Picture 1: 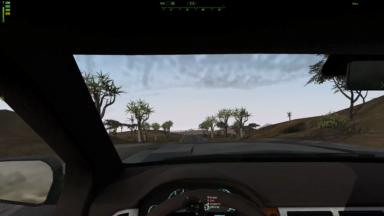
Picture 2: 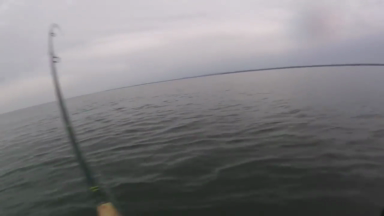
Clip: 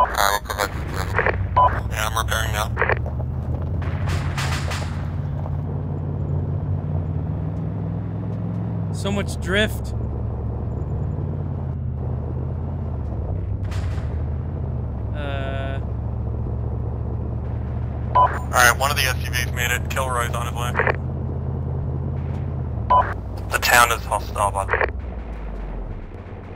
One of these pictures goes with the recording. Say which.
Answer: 1